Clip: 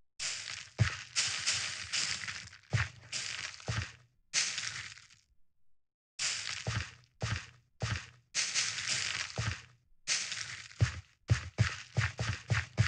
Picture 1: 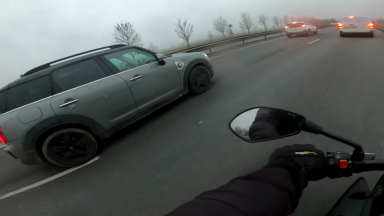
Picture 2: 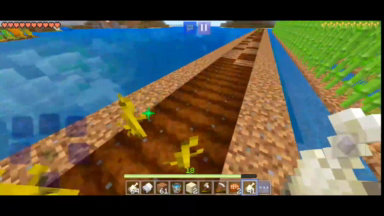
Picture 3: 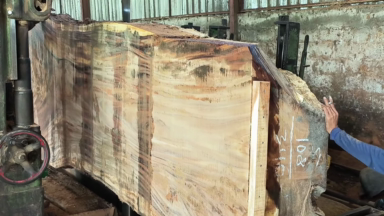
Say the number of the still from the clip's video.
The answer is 2